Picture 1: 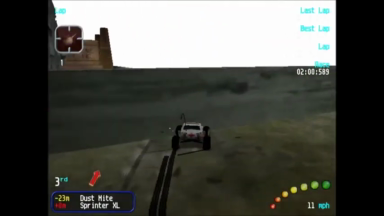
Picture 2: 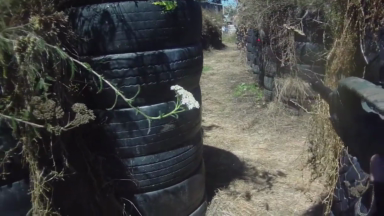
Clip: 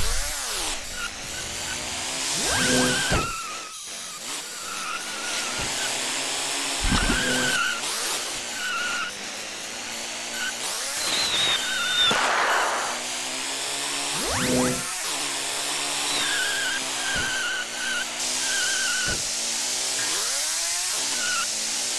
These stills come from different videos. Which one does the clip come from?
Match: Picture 1